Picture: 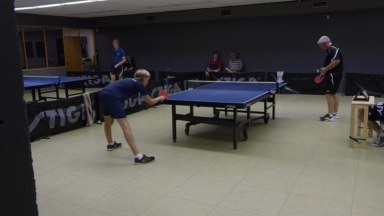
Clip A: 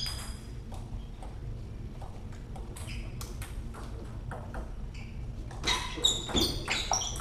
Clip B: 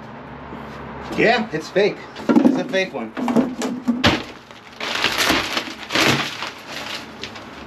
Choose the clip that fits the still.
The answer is A